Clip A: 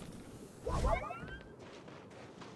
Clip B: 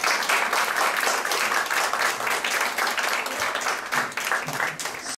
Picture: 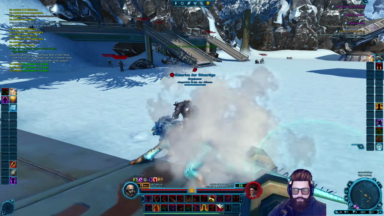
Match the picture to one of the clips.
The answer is A